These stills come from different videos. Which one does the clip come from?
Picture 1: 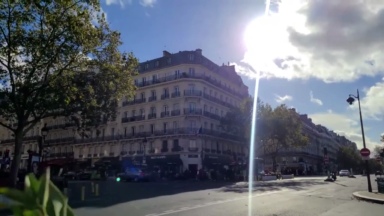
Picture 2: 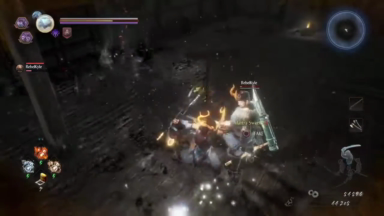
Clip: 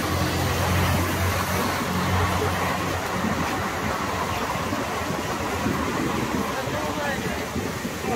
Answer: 1